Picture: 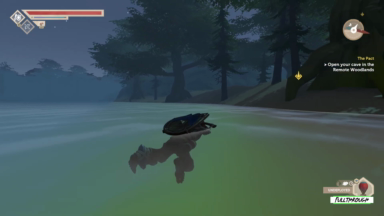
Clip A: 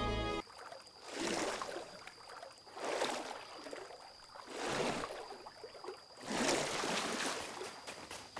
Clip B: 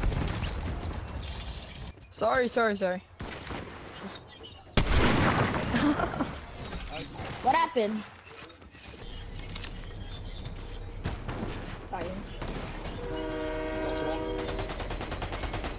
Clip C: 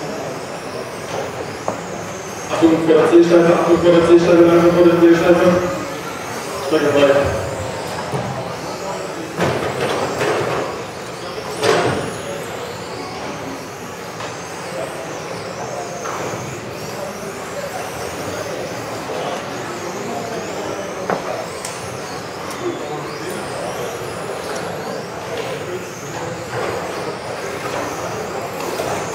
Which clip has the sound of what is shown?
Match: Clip A